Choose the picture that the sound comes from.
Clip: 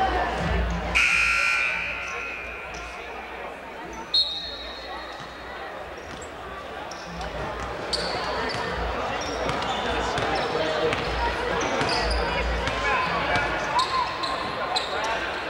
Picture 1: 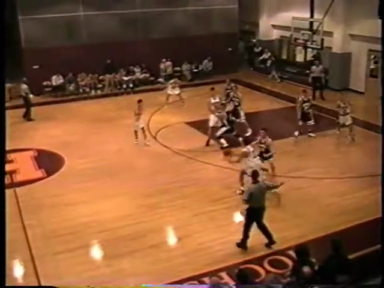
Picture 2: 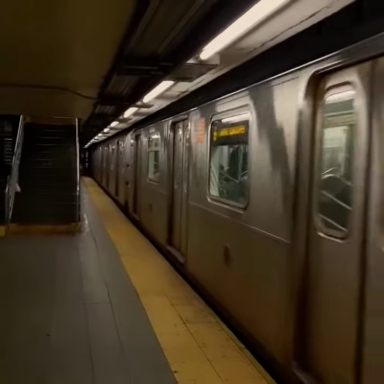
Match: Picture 1